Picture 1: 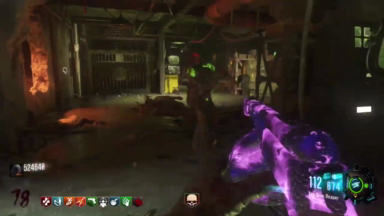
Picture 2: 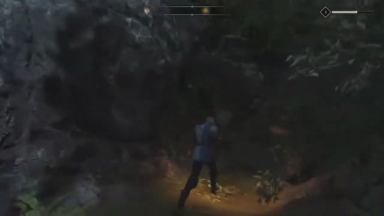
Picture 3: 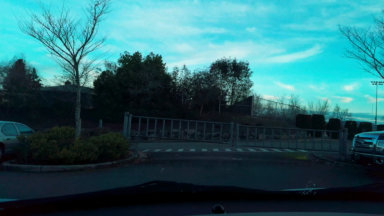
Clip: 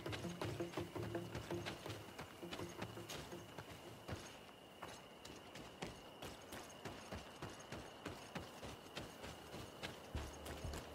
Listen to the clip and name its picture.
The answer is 2